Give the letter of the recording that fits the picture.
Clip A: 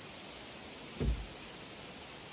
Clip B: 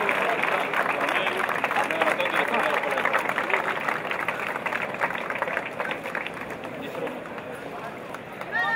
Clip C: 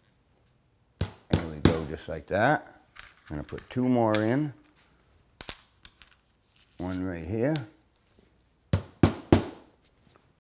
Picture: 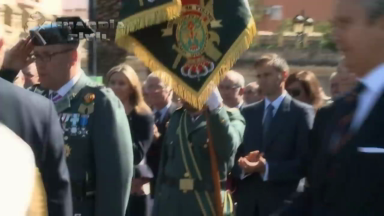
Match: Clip B